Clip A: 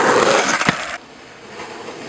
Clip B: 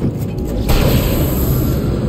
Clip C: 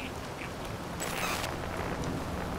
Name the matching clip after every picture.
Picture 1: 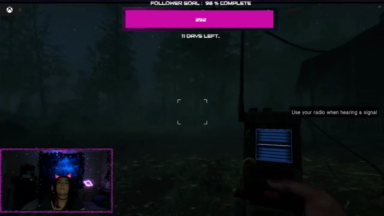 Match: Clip C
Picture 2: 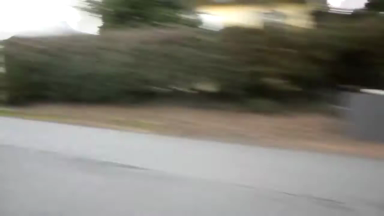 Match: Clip A